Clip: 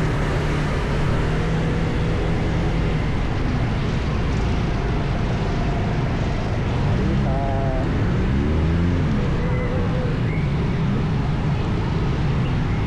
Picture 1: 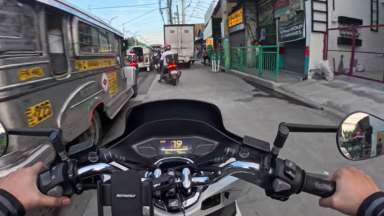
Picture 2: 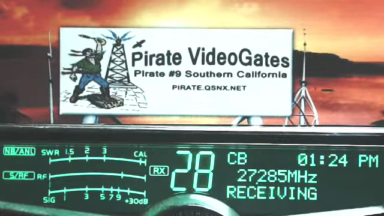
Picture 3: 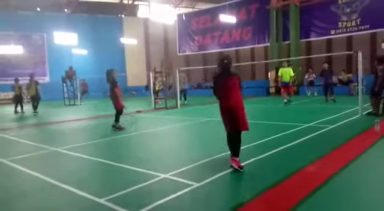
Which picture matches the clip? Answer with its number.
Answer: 1